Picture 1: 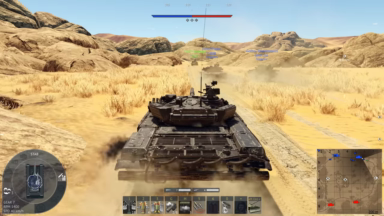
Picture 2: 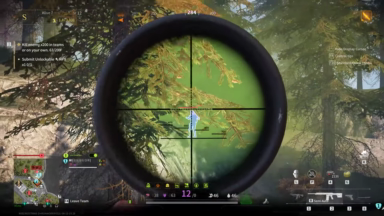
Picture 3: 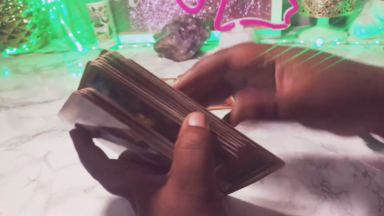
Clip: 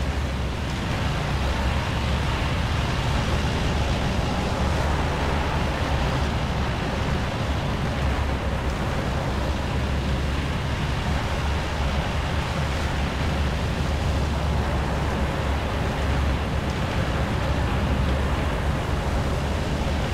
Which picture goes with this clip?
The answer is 1